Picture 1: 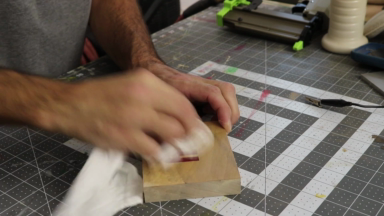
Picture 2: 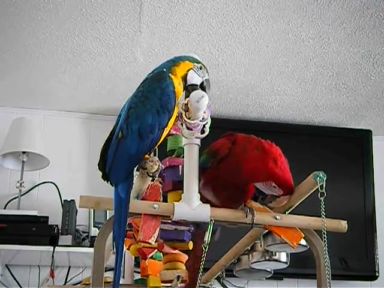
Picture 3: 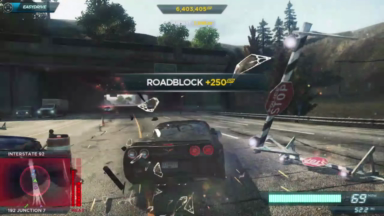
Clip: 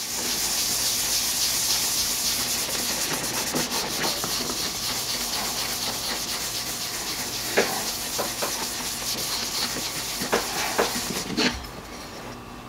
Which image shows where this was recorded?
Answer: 1